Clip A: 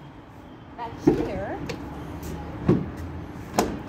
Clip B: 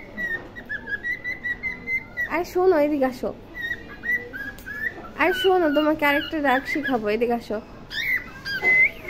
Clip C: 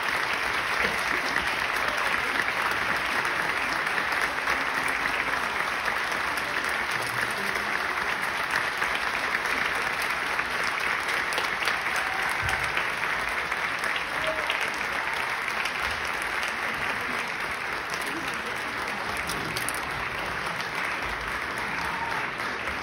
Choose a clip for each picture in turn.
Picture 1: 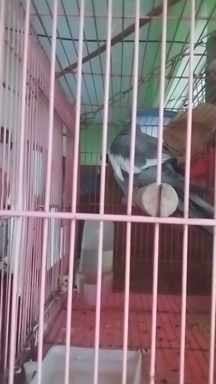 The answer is B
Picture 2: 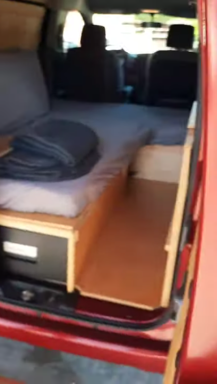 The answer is A